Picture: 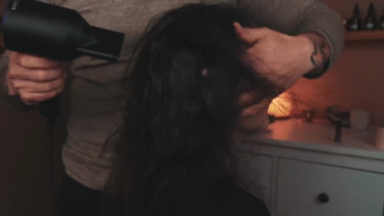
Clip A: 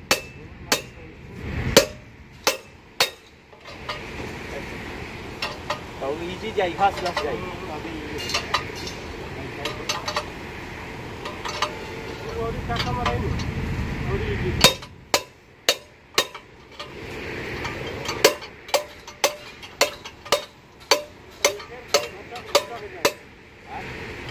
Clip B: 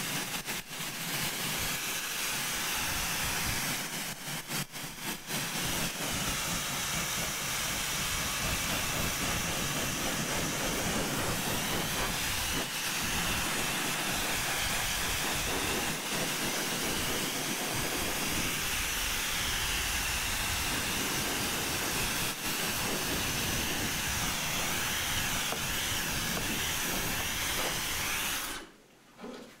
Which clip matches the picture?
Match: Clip B